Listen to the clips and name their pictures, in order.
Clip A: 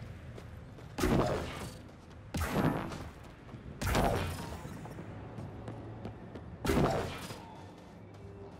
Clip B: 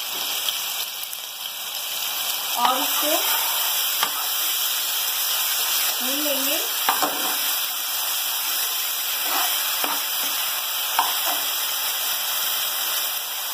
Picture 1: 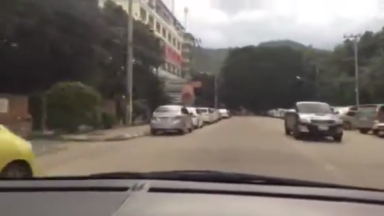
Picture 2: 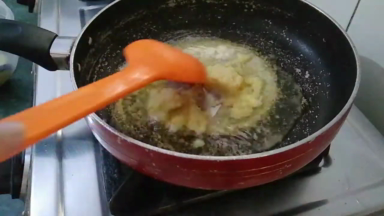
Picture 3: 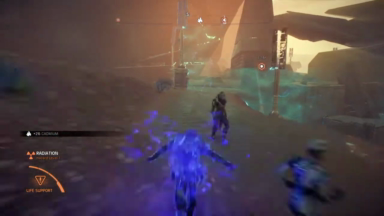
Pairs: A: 3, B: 2